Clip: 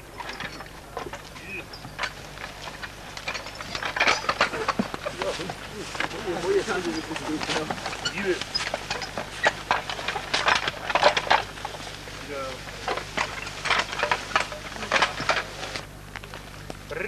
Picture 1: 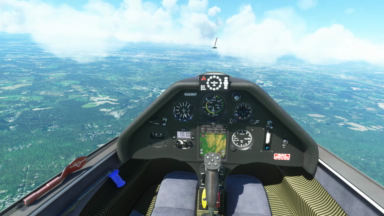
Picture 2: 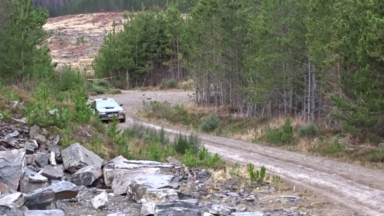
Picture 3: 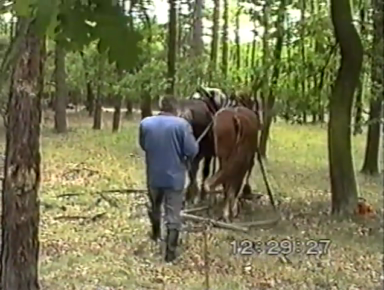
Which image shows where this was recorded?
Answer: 3